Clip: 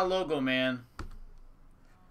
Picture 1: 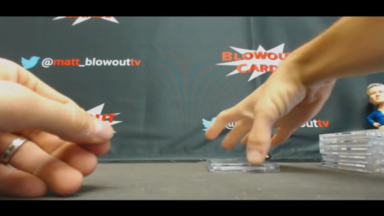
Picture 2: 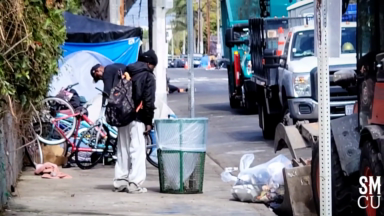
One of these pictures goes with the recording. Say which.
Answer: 1